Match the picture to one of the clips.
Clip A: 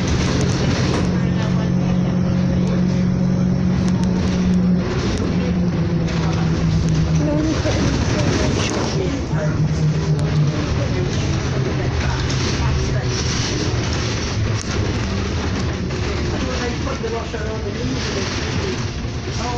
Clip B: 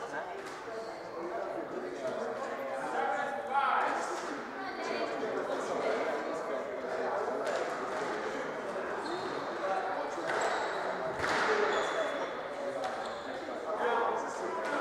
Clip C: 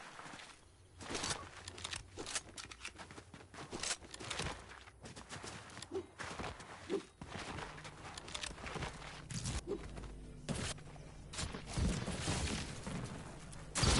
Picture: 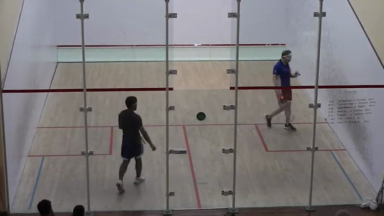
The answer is B